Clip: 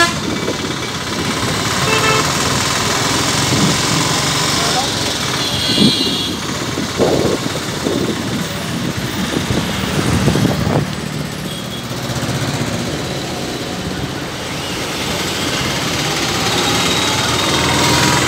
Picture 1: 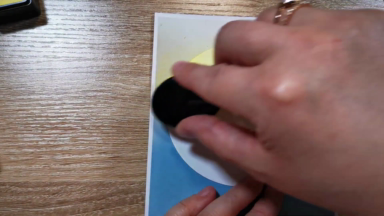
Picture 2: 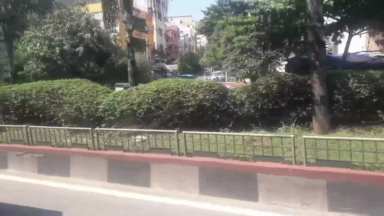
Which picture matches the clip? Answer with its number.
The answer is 2